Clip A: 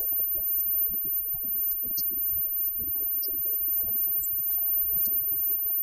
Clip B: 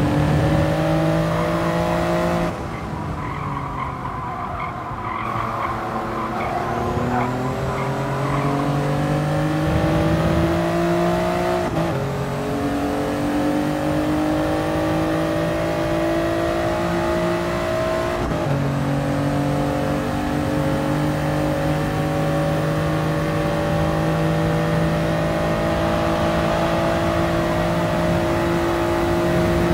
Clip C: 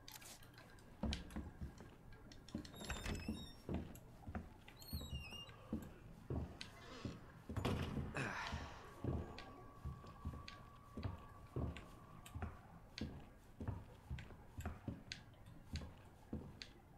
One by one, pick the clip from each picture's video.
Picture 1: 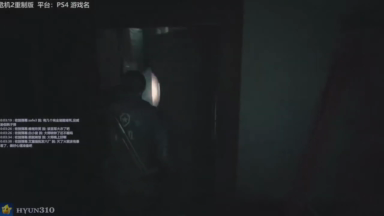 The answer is C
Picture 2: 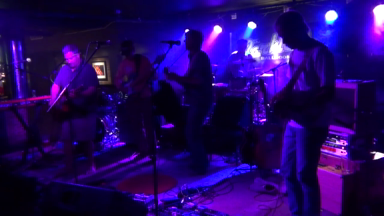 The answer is A